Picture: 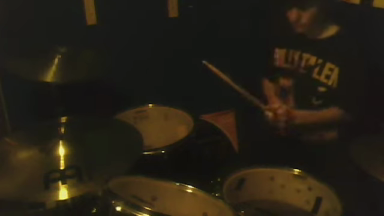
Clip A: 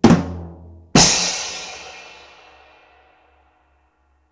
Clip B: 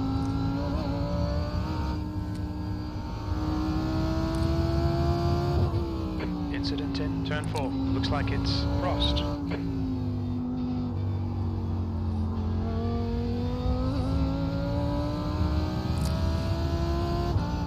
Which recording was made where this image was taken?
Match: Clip A